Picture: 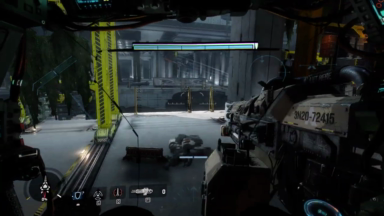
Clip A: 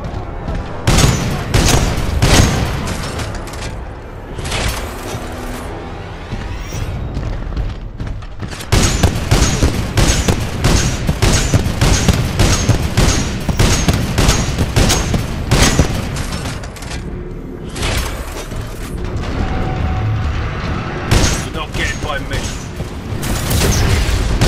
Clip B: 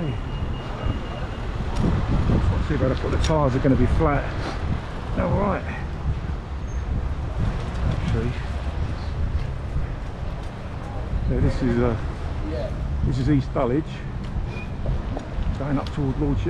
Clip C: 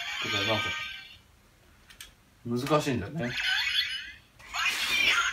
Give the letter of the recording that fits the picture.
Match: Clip A